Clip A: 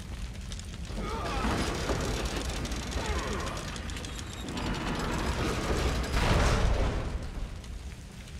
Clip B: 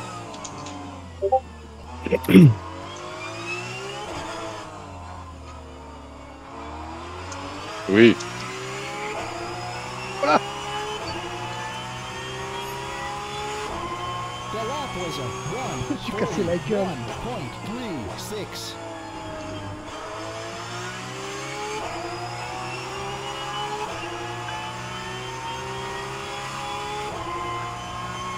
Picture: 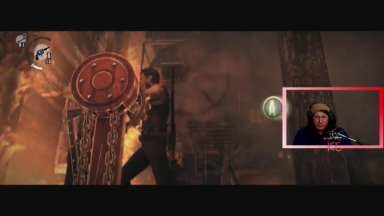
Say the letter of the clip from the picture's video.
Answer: A